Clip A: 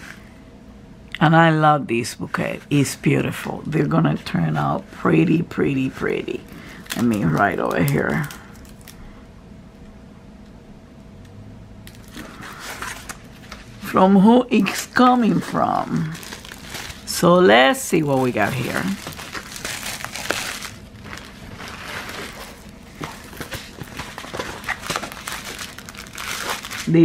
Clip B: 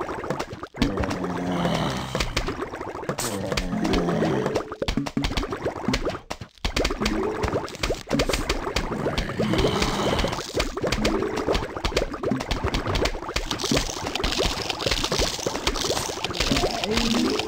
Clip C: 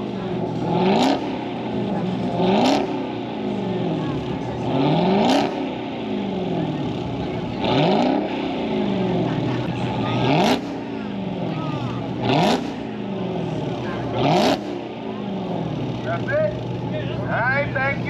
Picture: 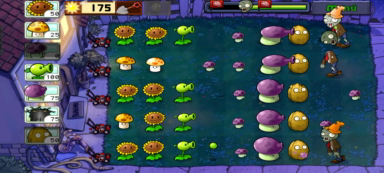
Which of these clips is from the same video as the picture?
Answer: B